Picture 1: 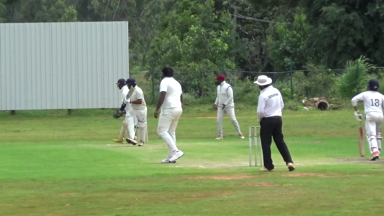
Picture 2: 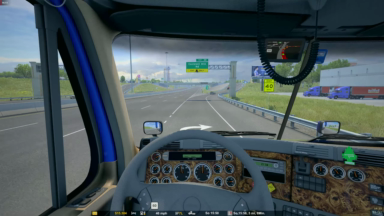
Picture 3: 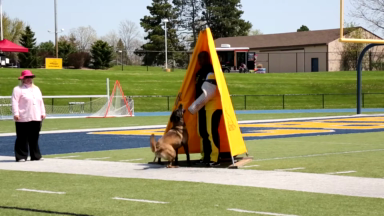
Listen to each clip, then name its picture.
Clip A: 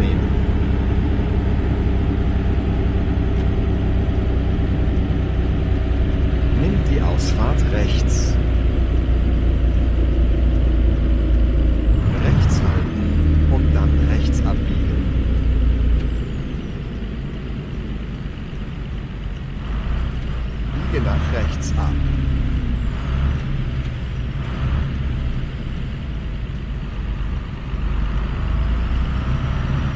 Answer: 2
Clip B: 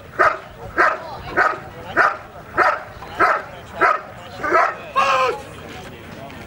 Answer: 3